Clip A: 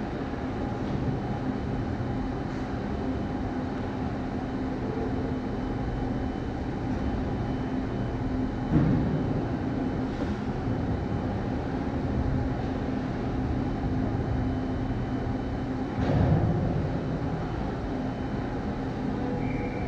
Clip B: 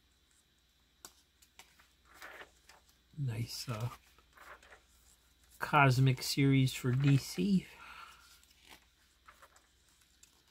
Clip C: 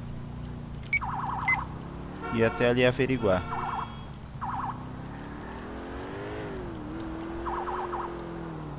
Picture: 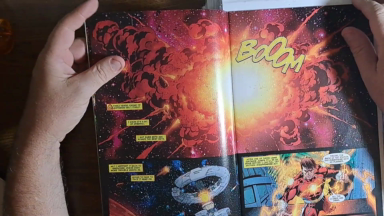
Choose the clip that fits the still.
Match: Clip B